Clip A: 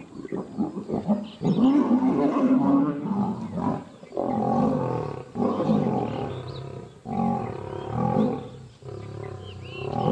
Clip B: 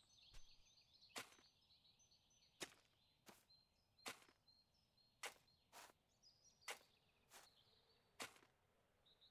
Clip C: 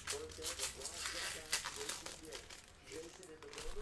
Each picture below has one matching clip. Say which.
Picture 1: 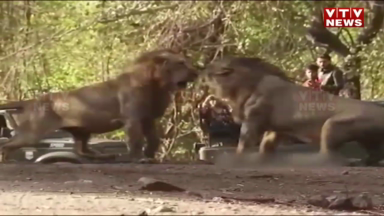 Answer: A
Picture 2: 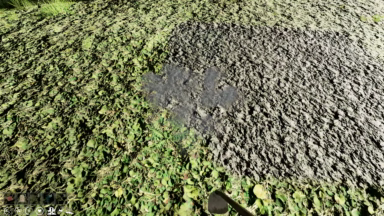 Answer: B